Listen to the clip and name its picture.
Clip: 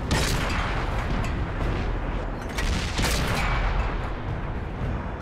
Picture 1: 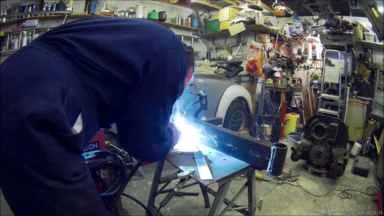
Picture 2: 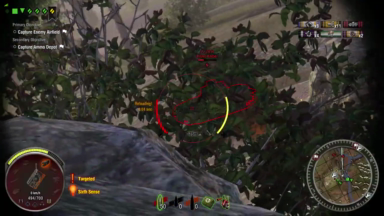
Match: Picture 2